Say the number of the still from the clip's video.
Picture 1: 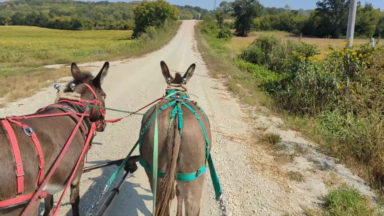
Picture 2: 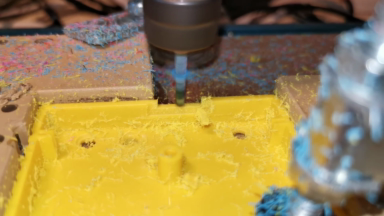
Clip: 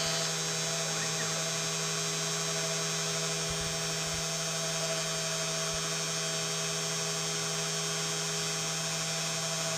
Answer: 2